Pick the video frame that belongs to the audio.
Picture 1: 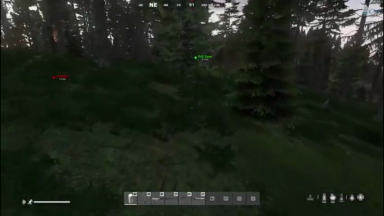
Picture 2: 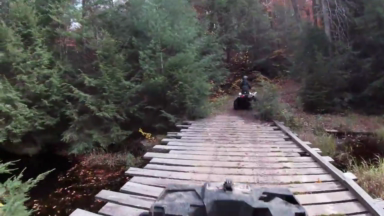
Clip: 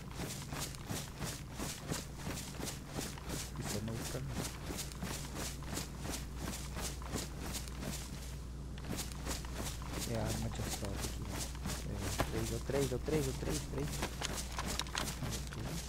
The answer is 1